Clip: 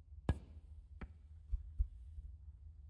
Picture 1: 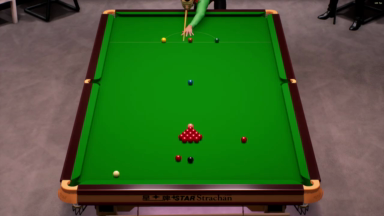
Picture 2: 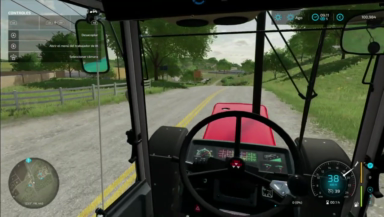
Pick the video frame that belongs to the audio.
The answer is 1